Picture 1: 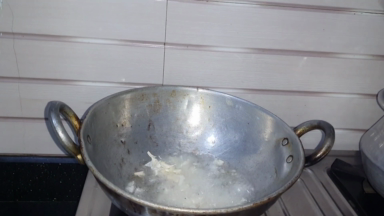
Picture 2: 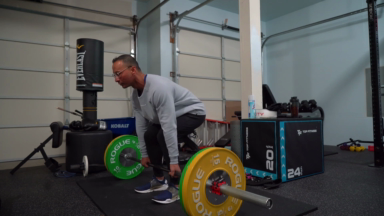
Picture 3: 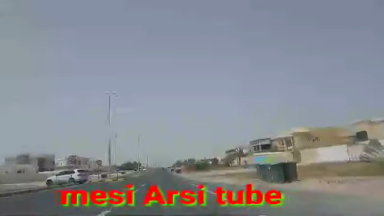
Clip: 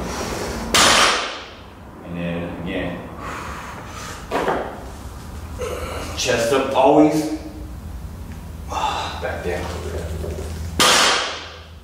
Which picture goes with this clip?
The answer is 2